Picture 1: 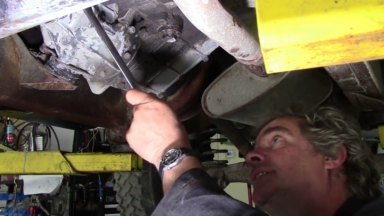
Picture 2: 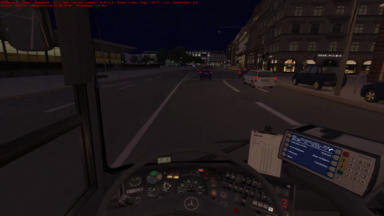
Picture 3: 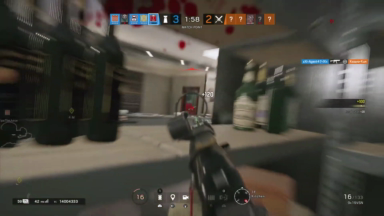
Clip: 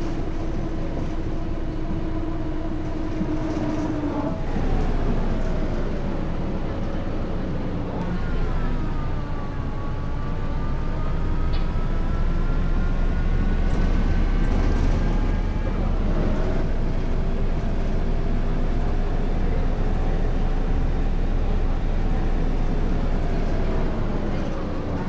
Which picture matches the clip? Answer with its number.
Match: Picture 2